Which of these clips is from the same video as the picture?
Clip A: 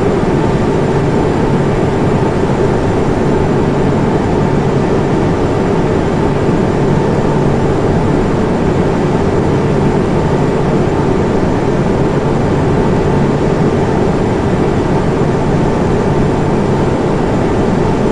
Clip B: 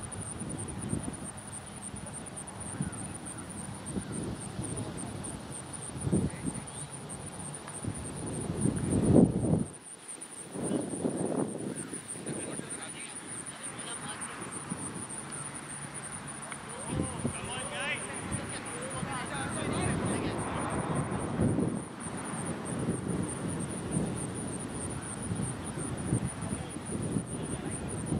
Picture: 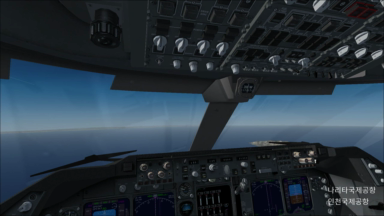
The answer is A